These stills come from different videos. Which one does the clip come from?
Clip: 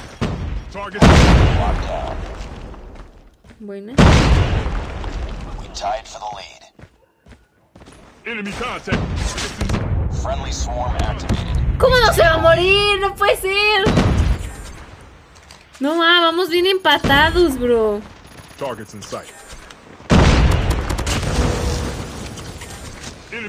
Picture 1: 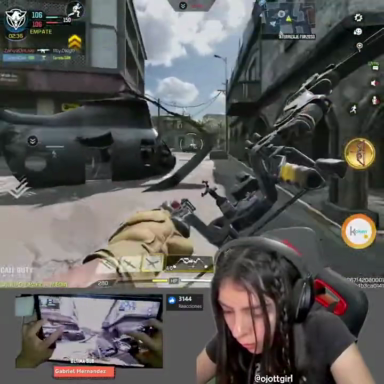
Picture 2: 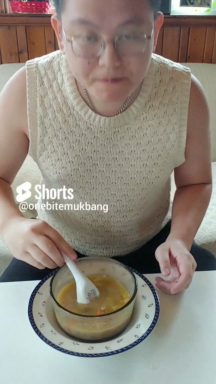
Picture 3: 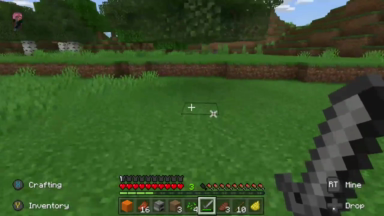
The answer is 1